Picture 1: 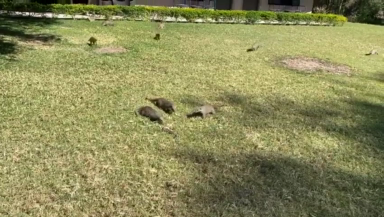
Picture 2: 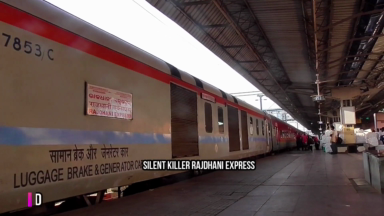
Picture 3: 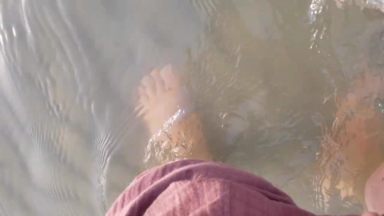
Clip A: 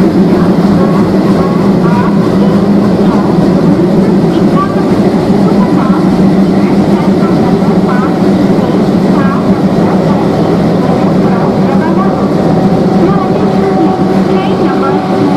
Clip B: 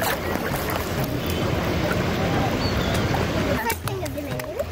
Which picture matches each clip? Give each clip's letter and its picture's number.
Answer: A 2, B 3